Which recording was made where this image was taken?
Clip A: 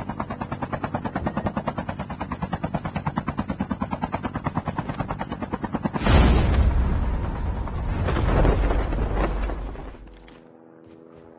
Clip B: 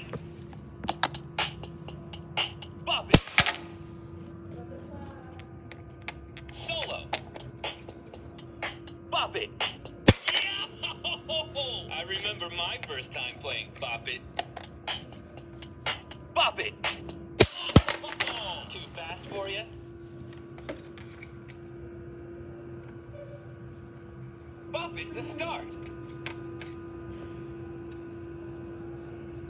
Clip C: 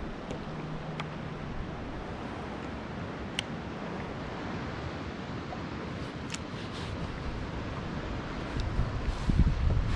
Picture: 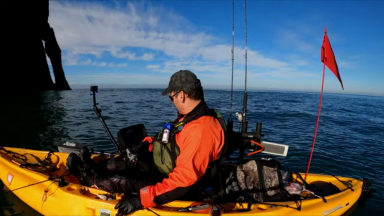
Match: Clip C